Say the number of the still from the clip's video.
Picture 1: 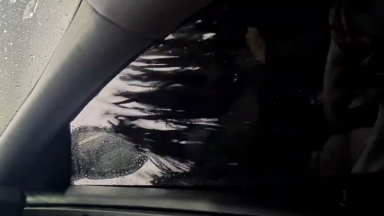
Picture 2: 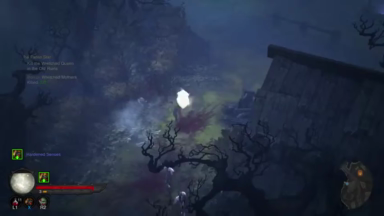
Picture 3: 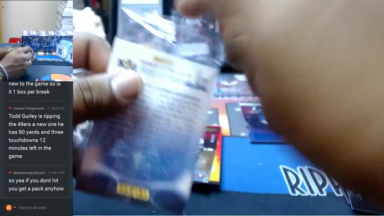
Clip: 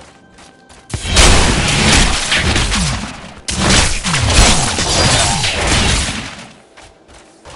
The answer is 2